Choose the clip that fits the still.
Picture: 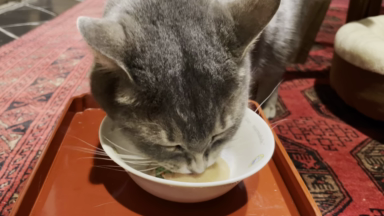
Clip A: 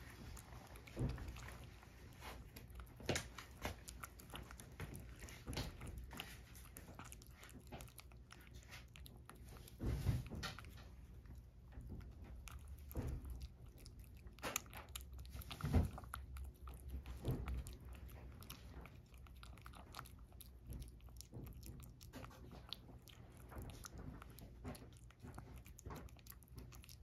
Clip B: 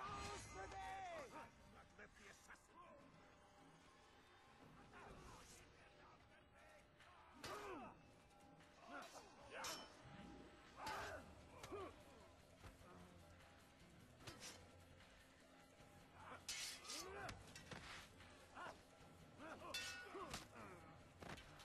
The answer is A